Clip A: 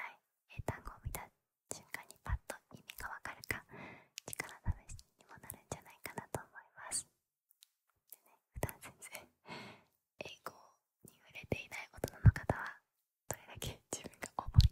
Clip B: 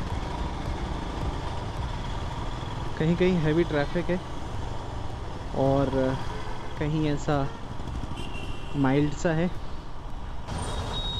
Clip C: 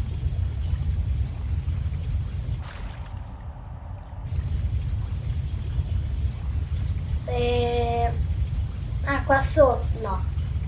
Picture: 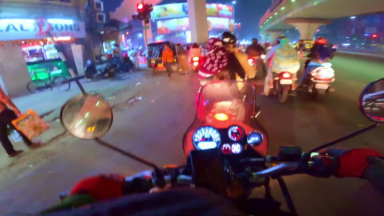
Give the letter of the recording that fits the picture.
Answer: B